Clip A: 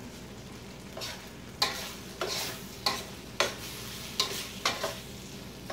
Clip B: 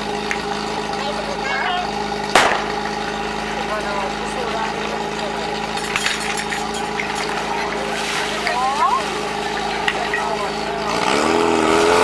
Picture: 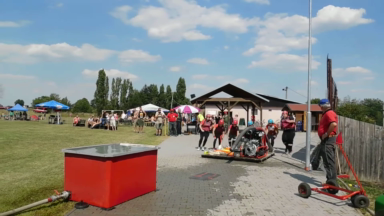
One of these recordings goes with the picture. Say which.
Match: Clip B